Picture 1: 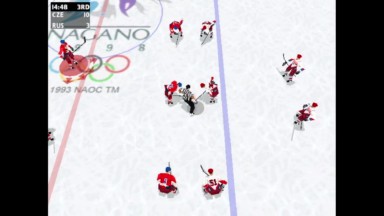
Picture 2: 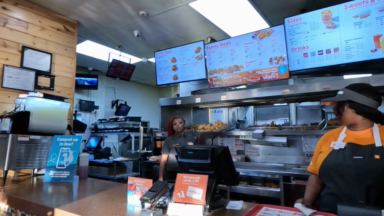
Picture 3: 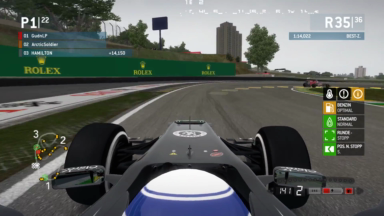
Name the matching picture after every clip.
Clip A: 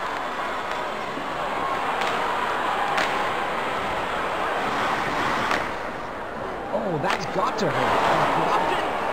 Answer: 1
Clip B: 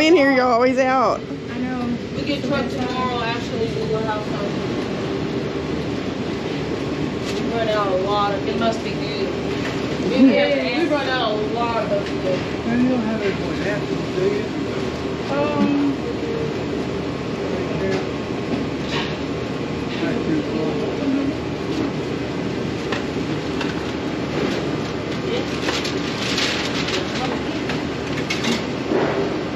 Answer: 2